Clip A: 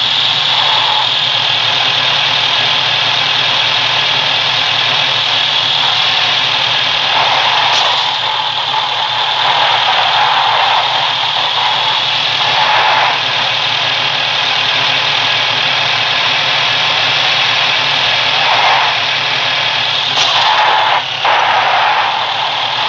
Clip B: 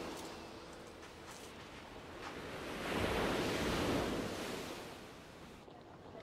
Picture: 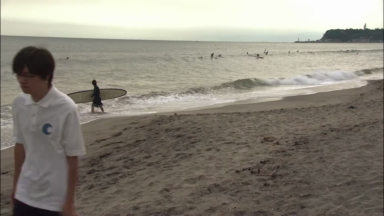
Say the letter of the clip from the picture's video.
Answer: B